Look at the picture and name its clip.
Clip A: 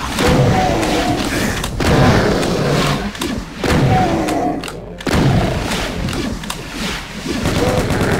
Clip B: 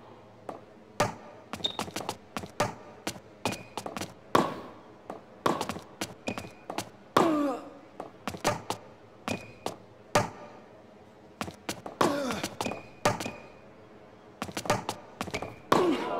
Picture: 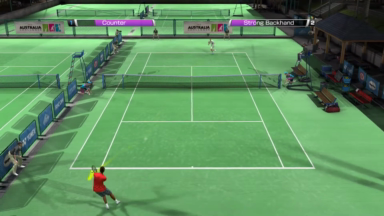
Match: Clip B